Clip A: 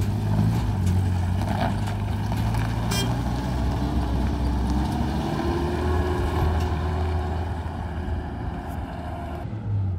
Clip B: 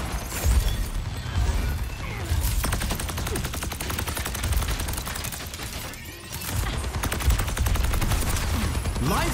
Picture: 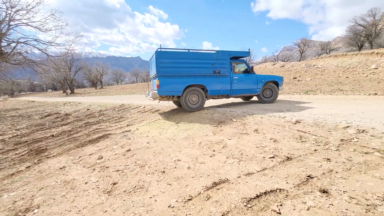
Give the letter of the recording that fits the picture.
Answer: A